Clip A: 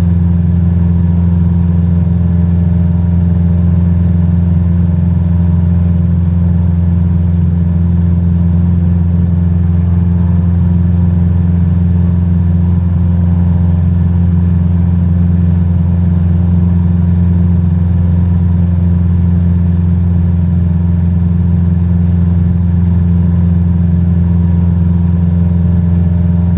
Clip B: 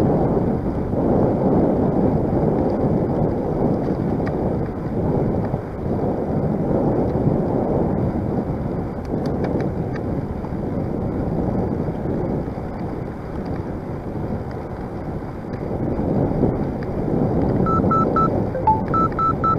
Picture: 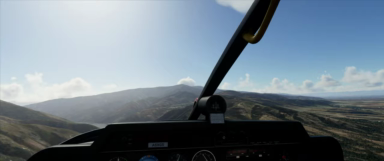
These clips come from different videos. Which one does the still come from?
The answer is A